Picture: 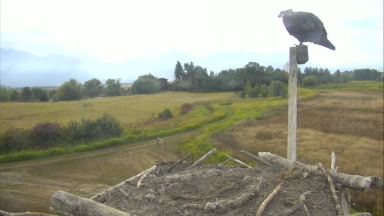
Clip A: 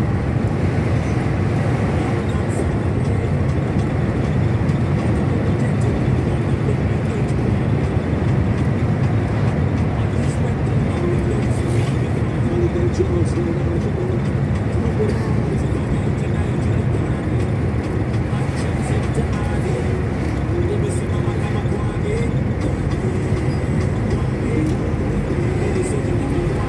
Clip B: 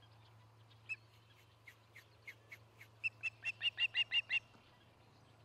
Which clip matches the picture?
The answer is B